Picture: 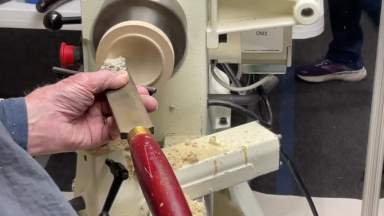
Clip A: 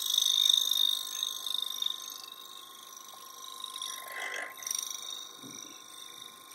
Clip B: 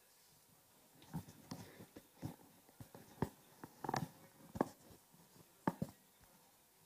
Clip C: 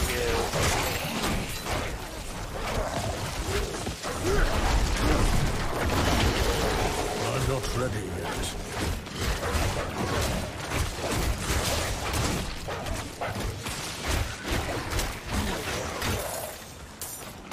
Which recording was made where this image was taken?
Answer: A